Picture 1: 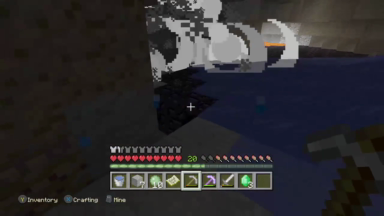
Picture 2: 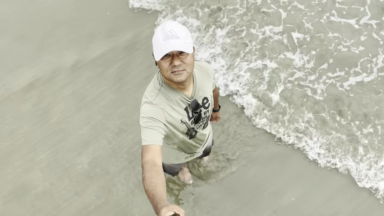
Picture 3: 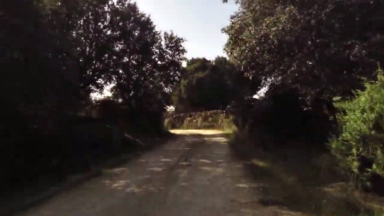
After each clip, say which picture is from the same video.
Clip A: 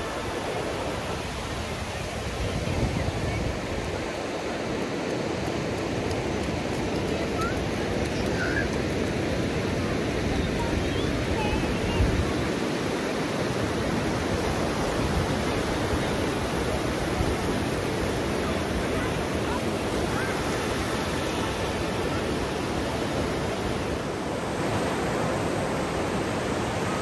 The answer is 2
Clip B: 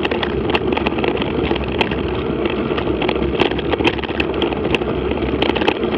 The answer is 3